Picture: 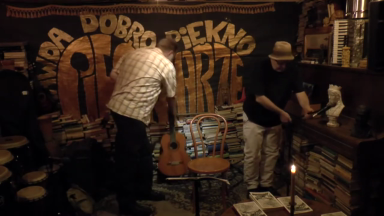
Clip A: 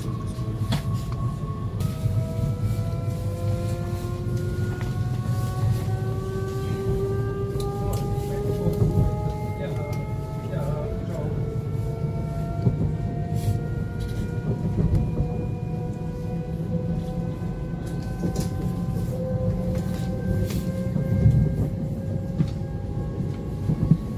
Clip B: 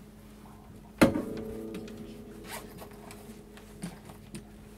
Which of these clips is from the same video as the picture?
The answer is B